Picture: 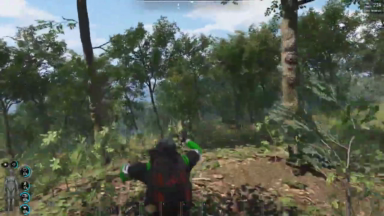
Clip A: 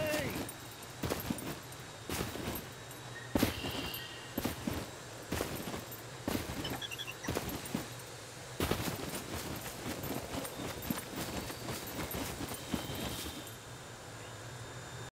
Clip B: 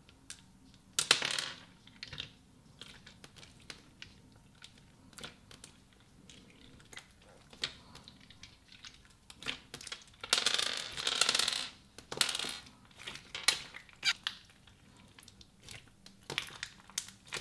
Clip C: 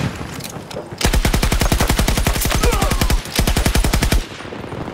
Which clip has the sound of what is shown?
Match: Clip A